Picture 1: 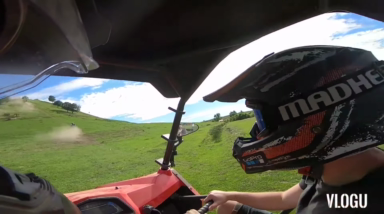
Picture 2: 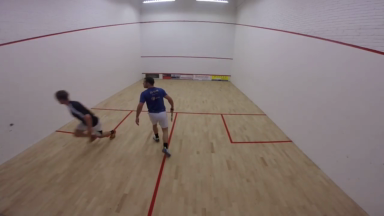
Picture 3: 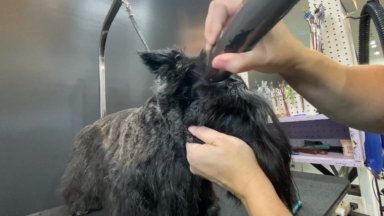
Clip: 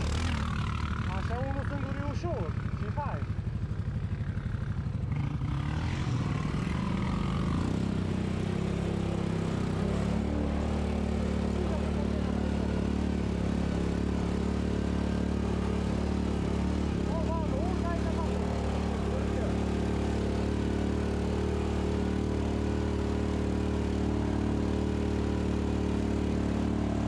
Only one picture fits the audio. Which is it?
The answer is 1